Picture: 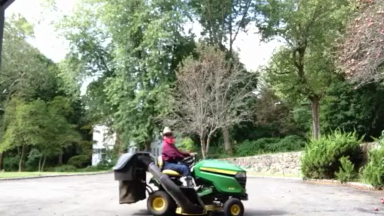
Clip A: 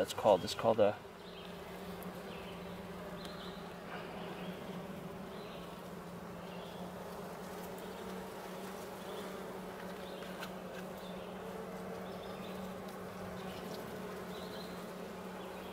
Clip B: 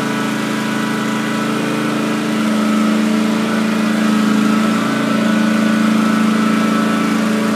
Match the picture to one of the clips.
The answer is B